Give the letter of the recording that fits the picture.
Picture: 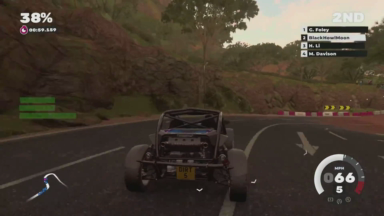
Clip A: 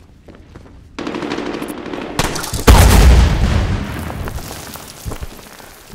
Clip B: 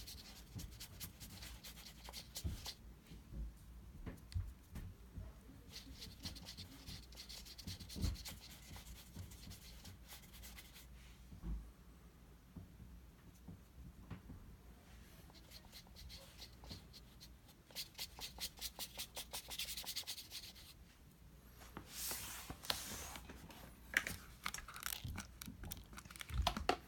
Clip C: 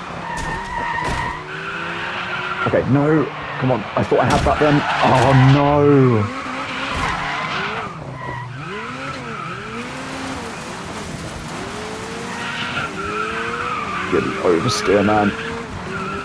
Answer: C